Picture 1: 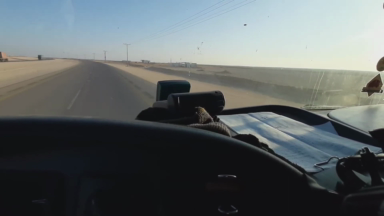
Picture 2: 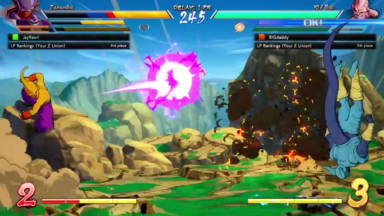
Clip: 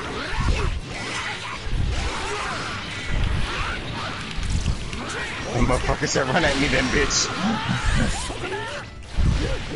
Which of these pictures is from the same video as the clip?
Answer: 2